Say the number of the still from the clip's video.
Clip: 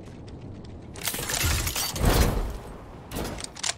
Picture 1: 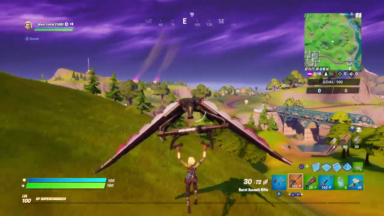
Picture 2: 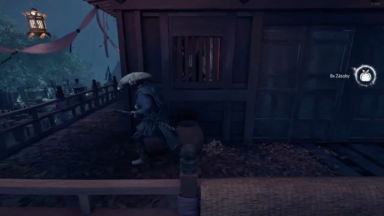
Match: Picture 1